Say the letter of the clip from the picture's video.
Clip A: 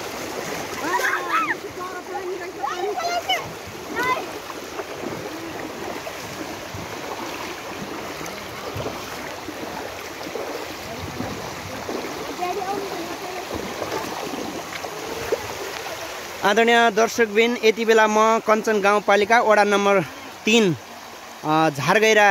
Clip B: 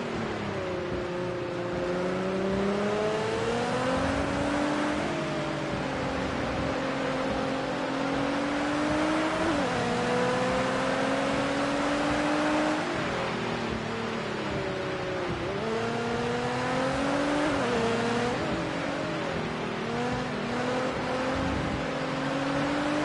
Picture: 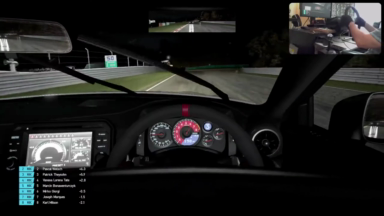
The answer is B